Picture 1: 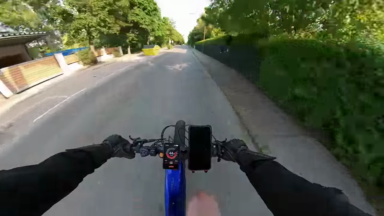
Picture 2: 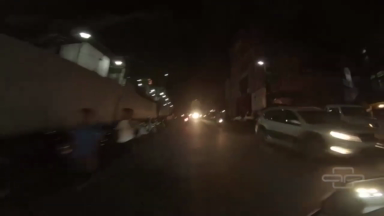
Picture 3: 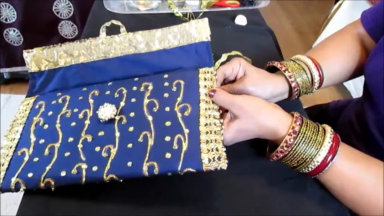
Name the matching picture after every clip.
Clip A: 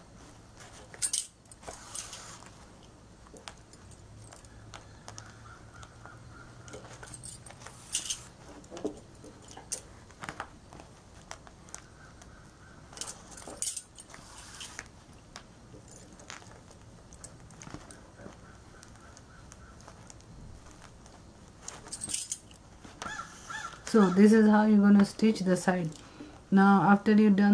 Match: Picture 3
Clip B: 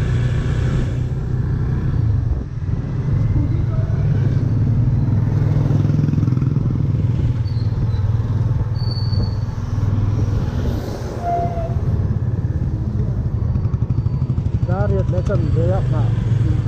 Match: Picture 2